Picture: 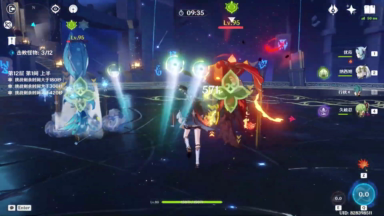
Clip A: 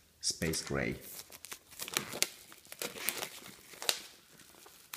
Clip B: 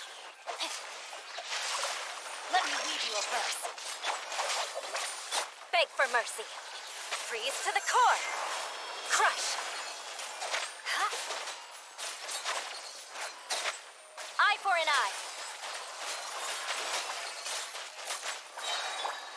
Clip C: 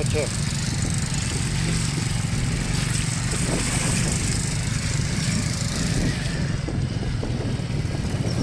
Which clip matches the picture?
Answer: B